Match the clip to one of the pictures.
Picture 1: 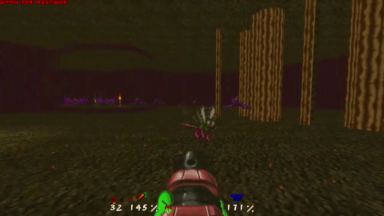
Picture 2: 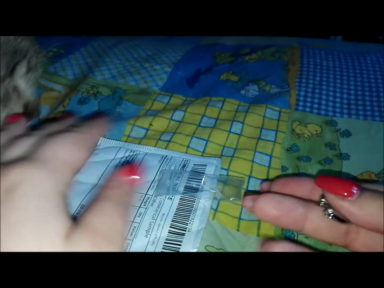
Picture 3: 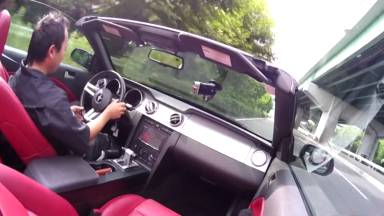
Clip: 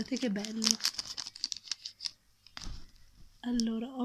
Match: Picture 2